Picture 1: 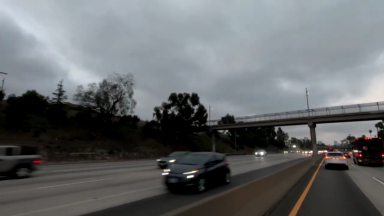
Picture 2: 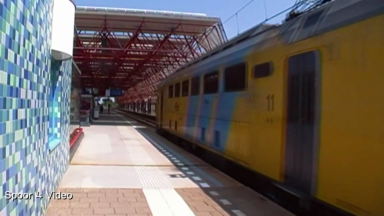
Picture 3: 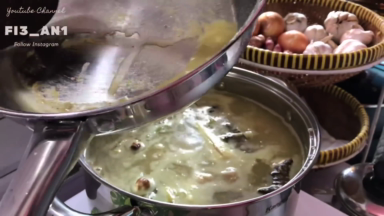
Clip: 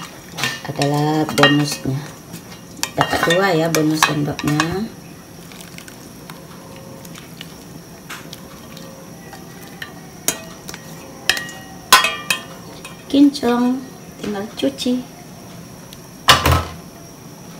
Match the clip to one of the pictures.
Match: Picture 3